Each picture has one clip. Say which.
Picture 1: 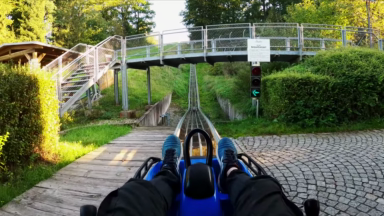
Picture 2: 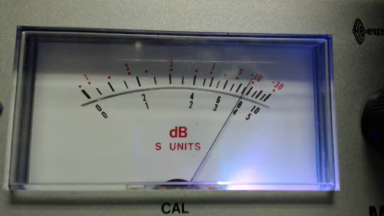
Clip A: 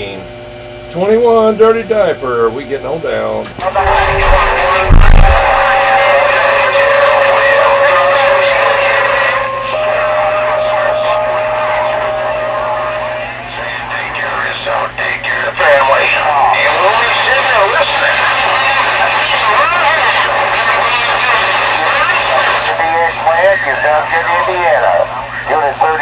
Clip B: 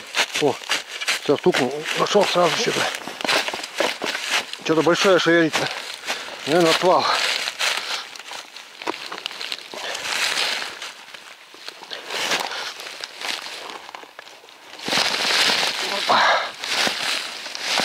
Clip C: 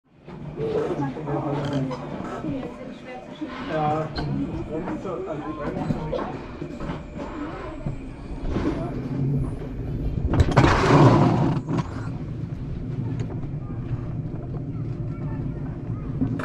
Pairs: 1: C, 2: A